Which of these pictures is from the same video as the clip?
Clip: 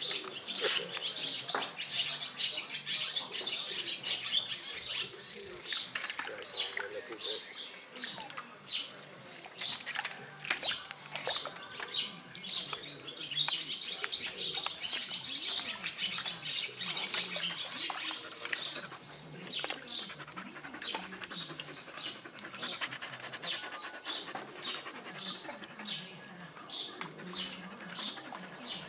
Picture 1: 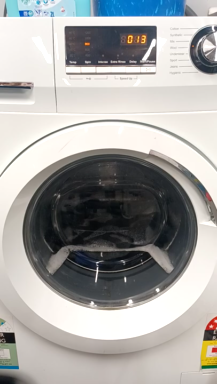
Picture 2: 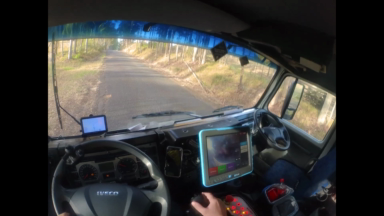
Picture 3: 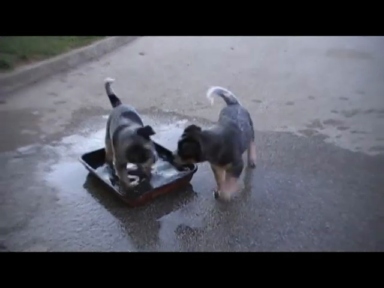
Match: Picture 3